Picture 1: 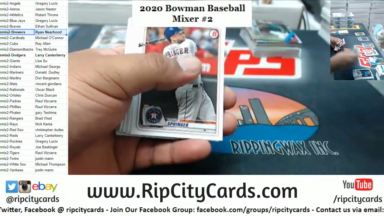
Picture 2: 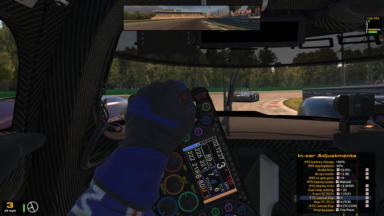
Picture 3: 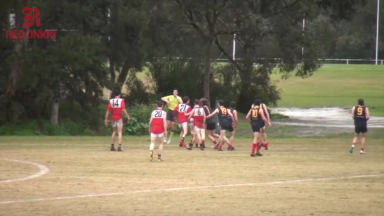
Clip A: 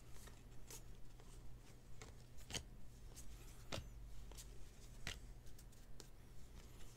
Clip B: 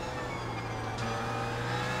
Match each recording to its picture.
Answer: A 1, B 2